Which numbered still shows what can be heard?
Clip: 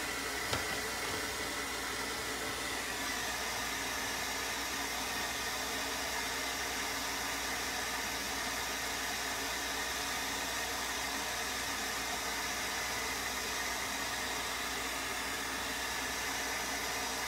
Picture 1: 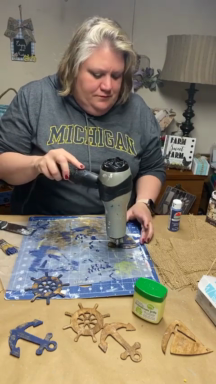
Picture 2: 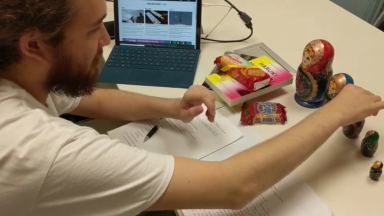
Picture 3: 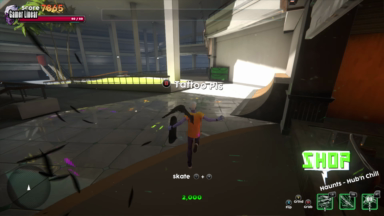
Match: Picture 1